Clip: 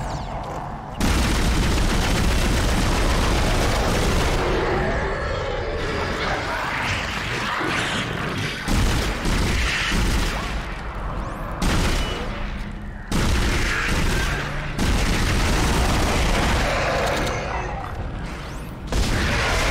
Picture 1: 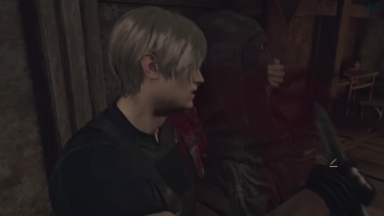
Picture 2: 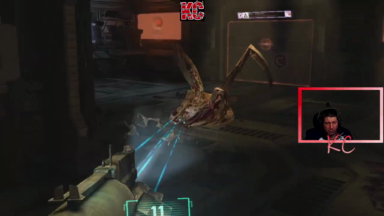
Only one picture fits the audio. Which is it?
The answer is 2